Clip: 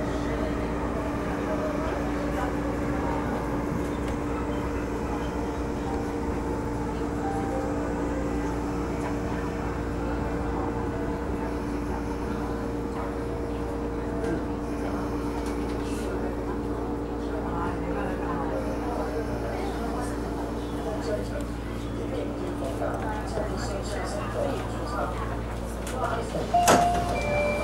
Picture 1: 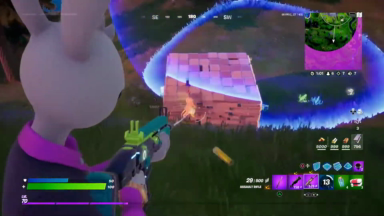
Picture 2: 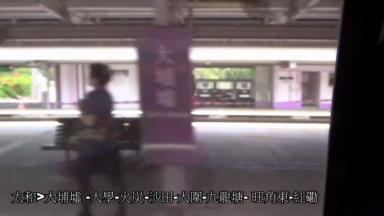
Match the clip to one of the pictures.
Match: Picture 2